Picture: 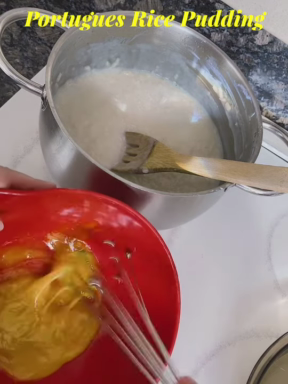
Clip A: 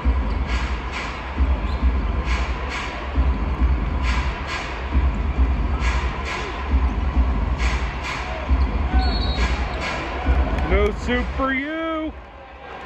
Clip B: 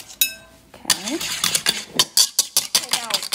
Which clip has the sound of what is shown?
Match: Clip B